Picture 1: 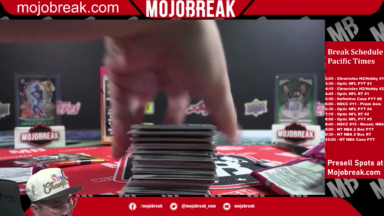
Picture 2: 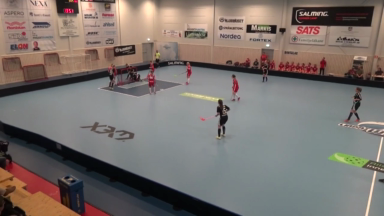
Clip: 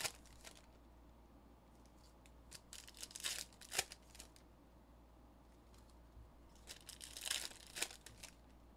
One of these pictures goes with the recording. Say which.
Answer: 1